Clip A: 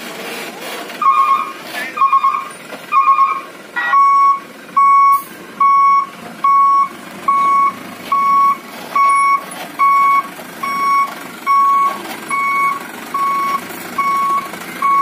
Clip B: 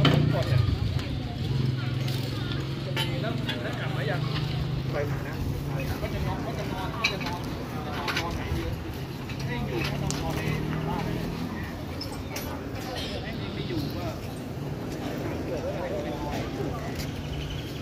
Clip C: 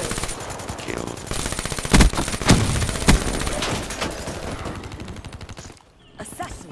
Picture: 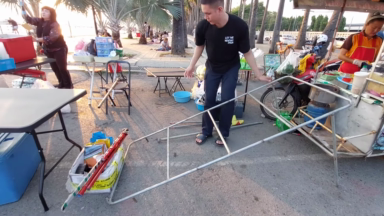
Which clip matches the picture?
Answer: B